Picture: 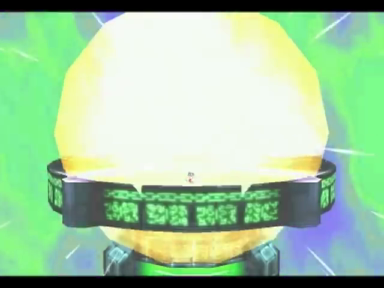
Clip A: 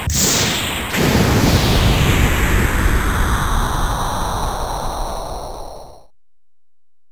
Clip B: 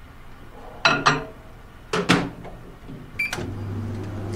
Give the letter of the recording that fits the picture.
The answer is A